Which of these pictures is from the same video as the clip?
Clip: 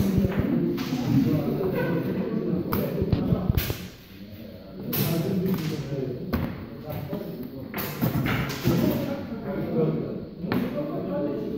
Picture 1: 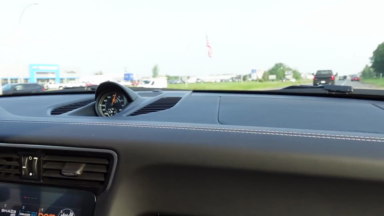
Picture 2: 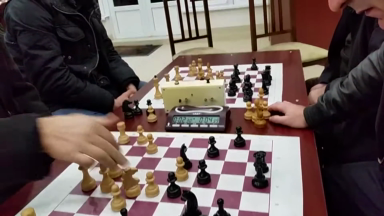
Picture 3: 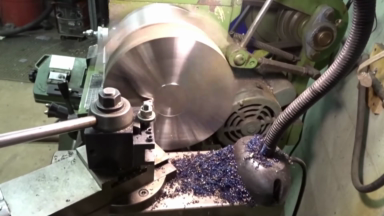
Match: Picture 2